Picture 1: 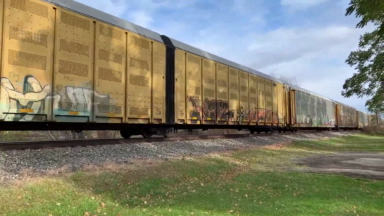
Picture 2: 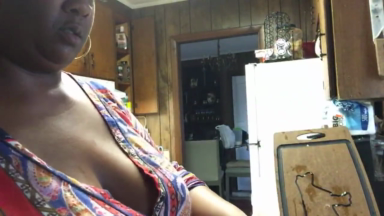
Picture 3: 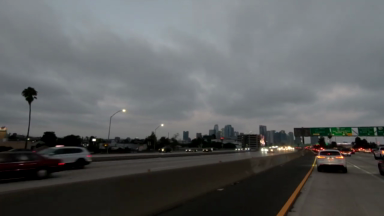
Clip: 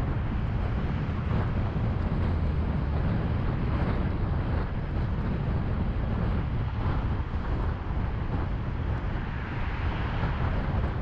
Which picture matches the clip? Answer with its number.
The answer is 3